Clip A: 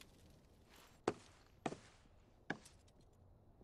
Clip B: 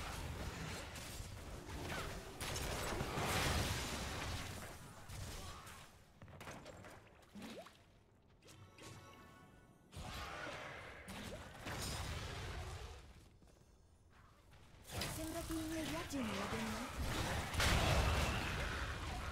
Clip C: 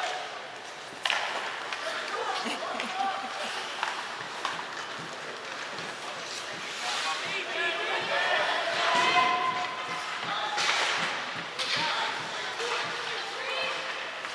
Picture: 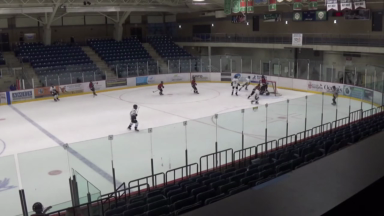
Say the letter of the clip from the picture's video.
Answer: C